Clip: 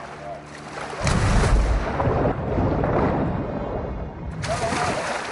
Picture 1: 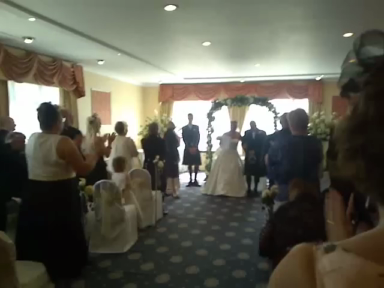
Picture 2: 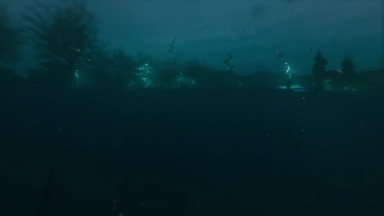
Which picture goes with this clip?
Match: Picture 2